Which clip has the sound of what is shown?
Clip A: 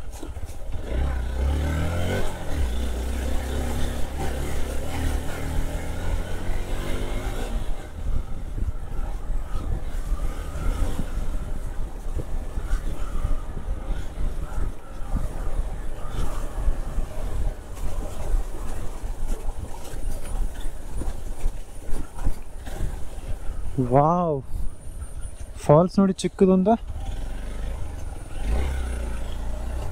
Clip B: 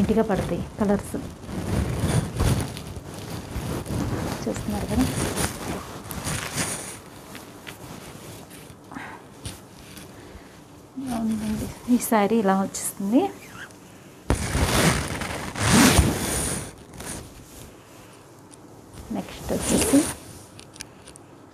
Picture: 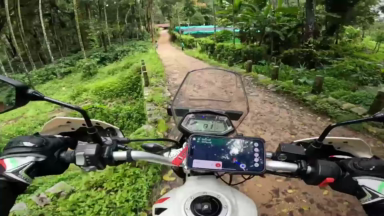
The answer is A